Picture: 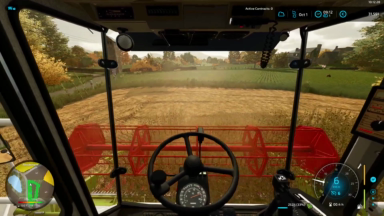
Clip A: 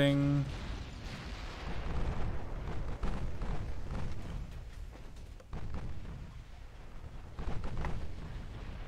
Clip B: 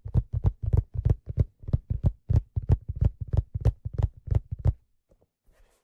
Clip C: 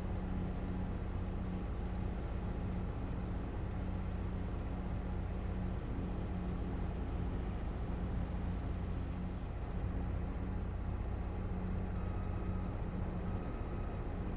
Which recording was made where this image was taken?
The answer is C